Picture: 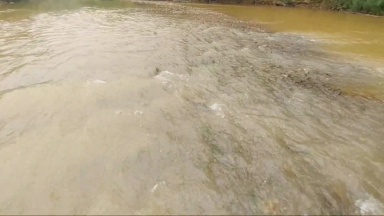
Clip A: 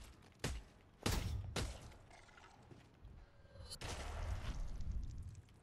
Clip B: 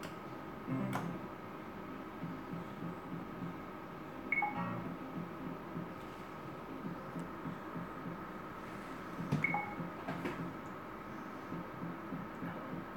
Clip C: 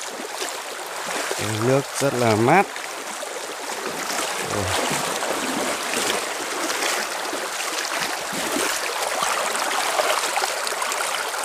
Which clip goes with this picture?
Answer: C